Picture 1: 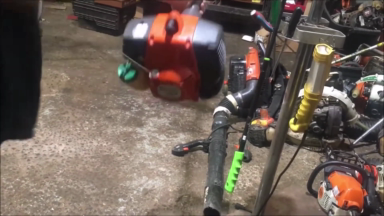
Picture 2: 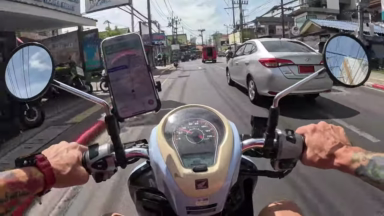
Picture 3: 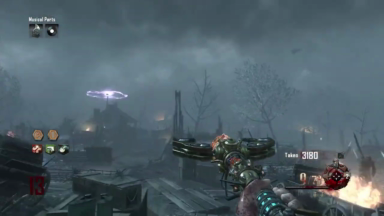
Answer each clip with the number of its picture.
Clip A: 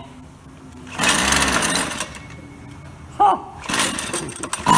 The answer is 1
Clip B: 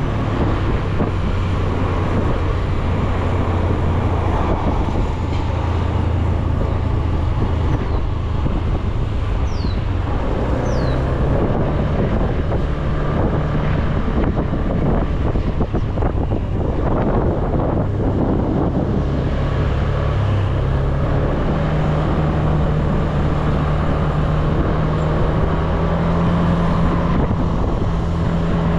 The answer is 2